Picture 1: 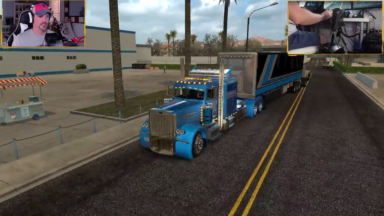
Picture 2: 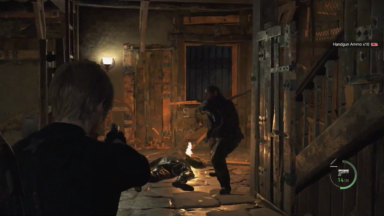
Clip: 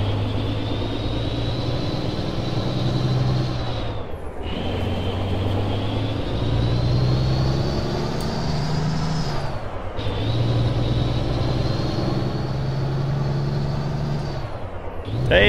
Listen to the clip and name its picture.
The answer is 1